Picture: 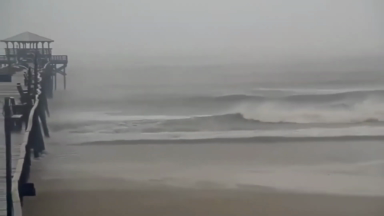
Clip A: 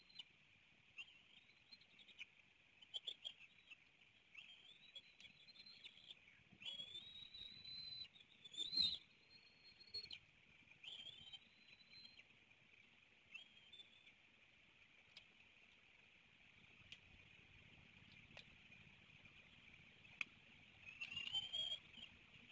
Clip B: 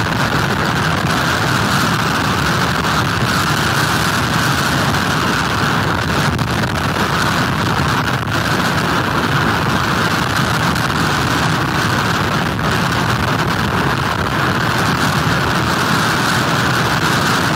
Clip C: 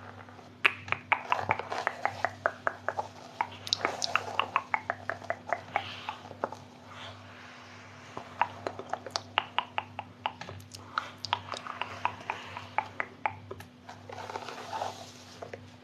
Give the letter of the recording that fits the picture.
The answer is B